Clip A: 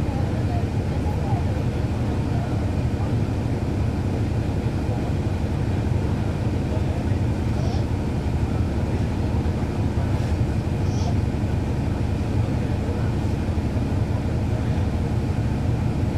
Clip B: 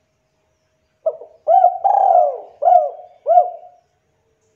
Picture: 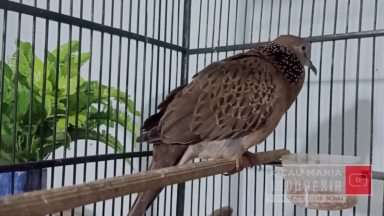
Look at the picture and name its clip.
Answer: B